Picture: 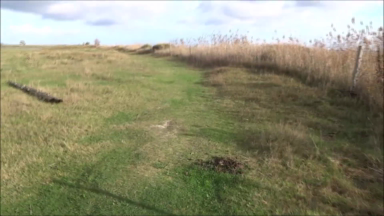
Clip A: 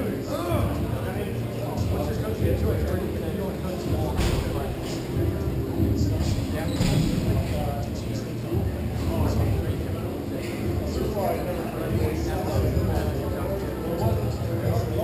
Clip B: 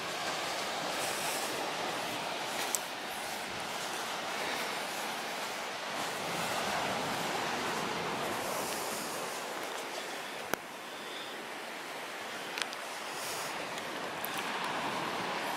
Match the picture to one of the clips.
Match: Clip B